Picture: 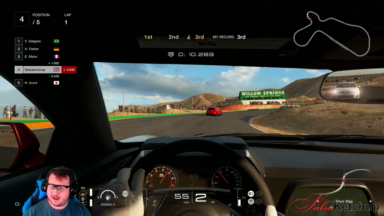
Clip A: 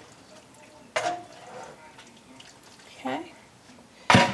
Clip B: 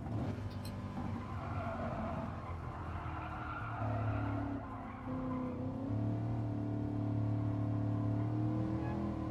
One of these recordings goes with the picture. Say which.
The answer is B